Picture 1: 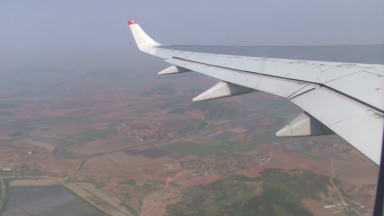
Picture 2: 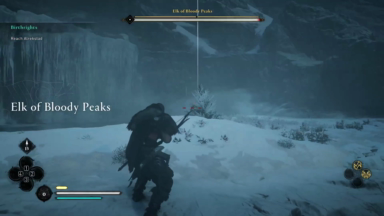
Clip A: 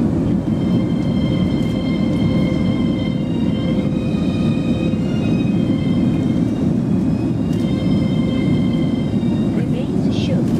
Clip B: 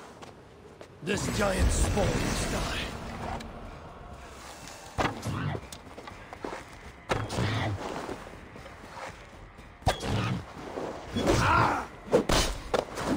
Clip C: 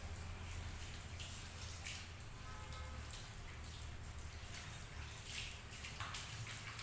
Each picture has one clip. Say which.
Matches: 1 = A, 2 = B